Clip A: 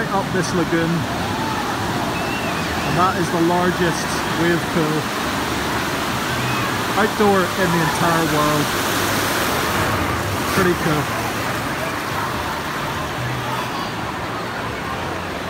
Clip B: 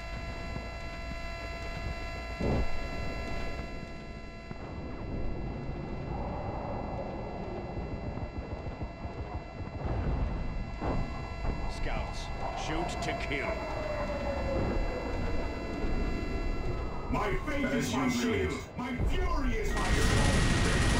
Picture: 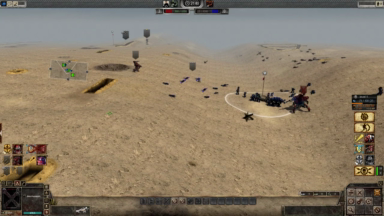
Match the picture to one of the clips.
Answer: B